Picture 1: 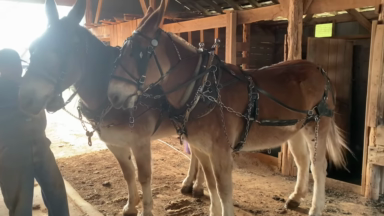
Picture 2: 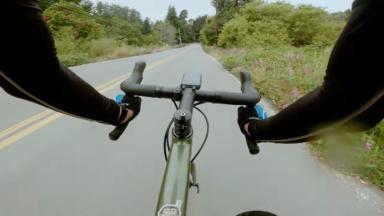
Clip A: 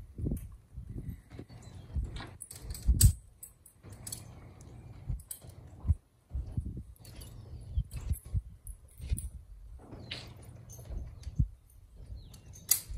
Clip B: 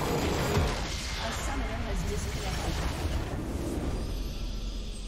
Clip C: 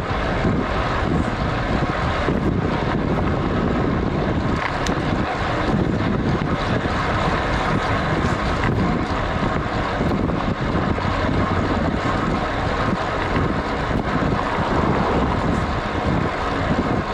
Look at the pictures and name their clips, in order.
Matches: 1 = A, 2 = C